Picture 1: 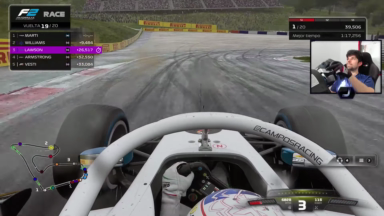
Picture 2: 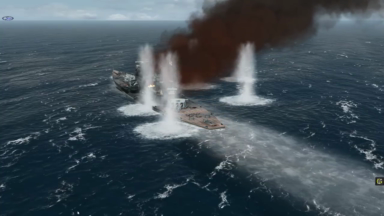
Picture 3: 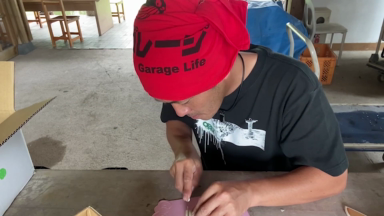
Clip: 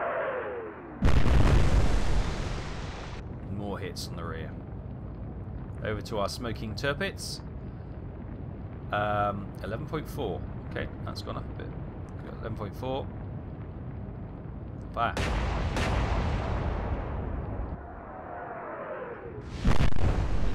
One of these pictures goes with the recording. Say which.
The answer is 2